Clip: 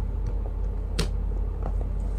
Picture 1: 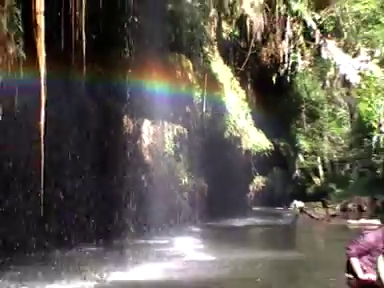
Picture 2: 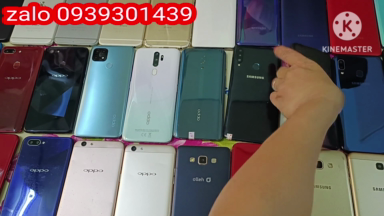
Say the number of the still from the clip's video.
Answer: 2